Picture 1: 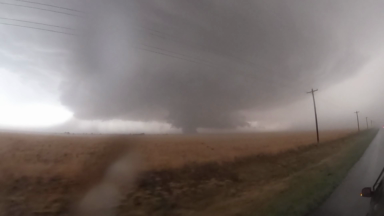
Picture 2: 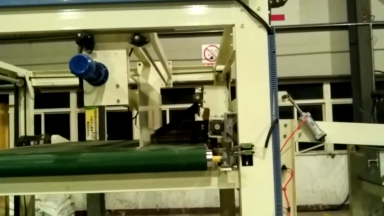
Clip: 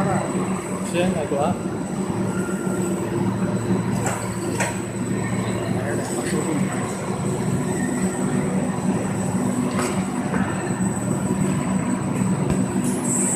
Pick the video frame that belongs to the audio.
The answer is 2